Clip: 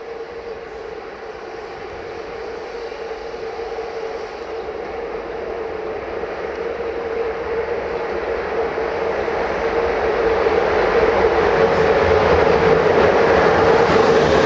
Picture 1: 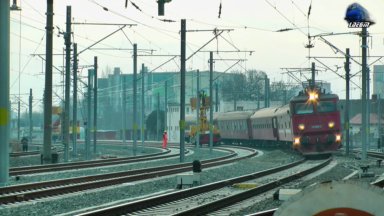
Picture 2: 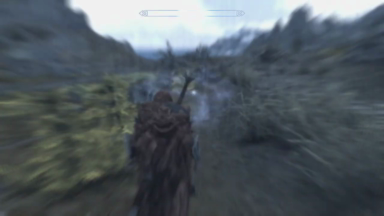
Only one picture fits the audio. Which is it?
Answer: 1